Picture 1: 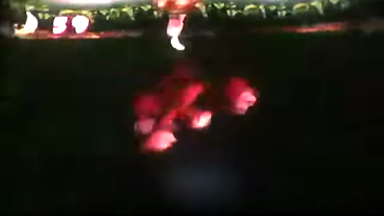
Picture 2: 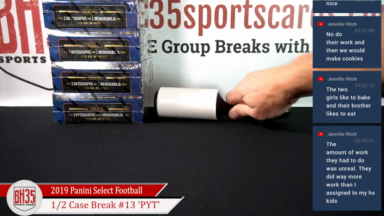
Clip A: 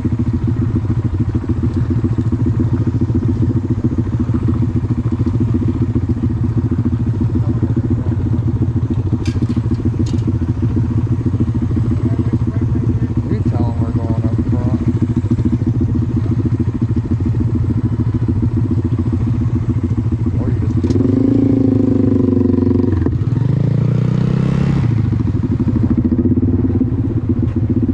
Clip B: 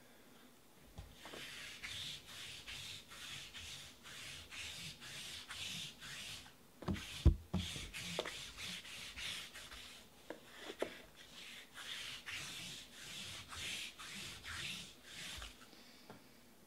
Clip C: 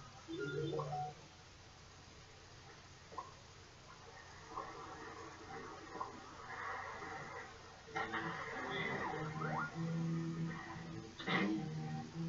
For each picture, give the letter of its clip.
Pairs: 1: C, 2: B